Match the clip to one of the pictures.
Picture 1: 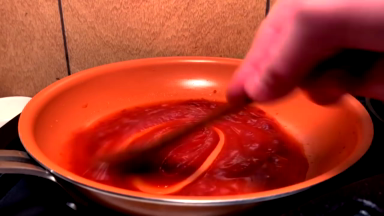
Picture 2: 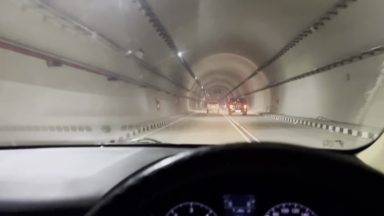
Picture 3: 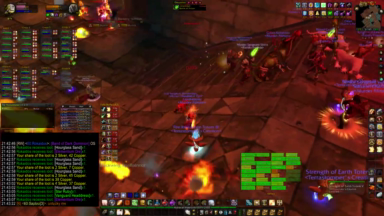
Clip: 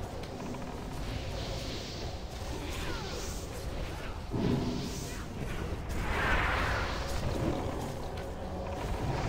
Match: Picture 3